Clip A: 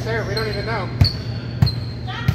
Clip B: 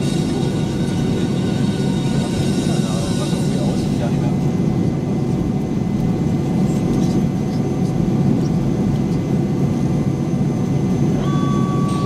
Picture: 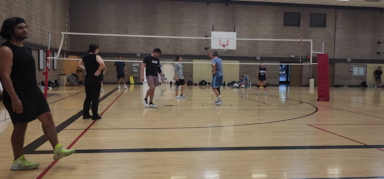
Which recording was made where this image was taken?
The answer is A